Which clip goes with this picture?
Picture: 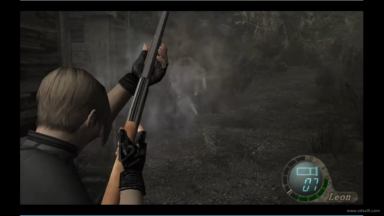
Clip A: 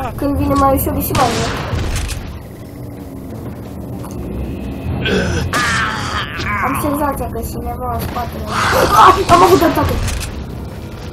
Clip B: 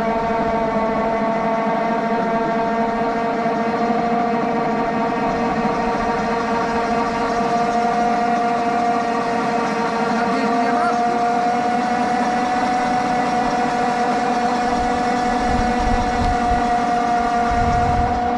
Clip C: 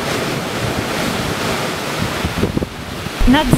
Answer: A